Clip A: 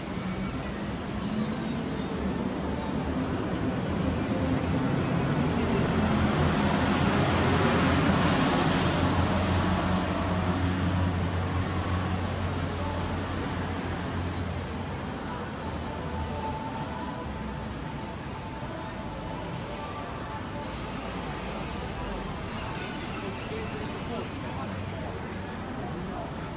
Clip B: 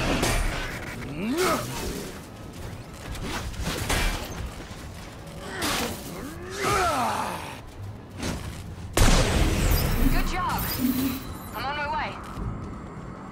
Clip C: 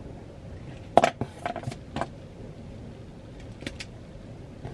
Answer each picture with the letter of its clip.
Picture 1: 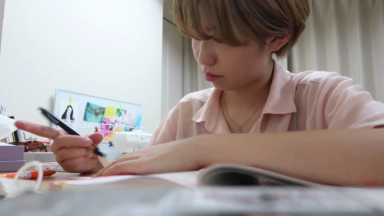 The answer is C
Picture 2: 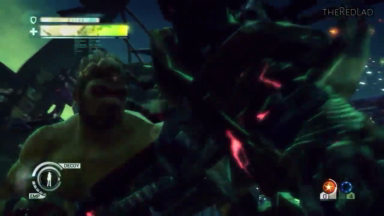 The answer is B